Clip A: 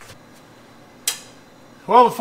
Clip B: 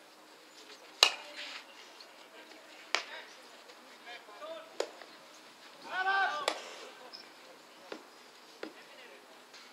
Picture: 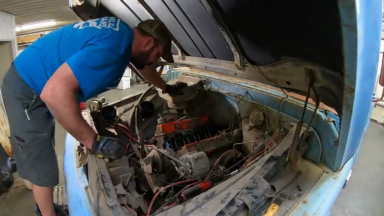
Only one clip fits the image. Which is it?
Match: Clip A